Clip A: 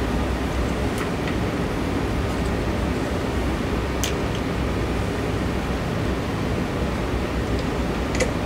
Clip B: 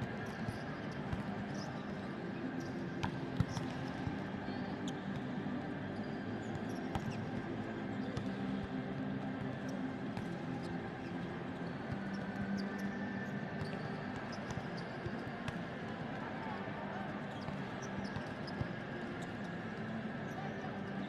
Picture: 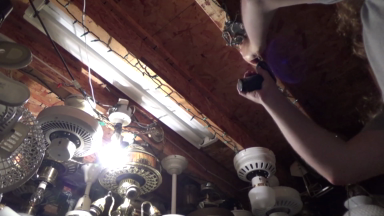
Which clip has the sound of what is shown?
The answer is A